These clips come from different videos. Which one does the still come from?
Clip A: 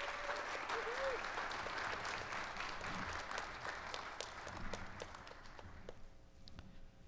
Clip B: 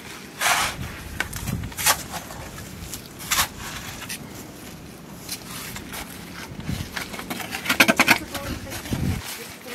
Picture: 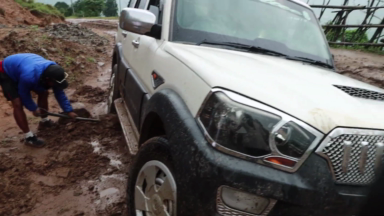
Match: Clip B